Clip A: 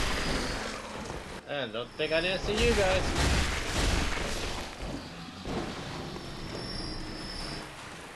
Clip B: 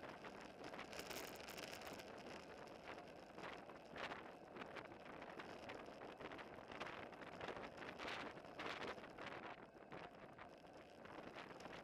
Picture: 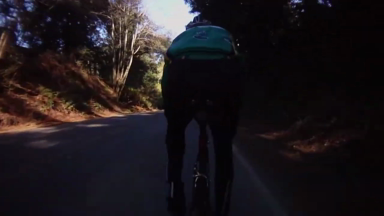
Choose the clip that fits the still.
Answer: B